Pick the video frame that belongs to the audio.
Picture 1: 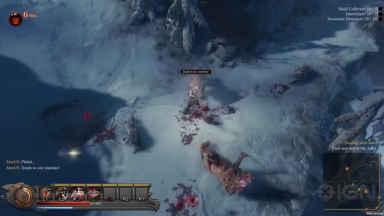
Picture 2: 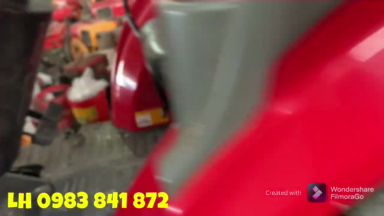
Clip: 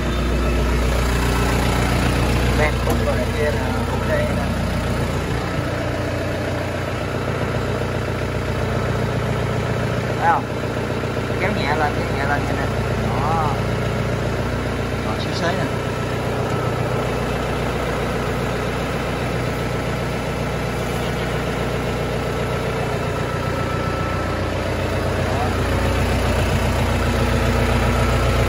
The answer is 2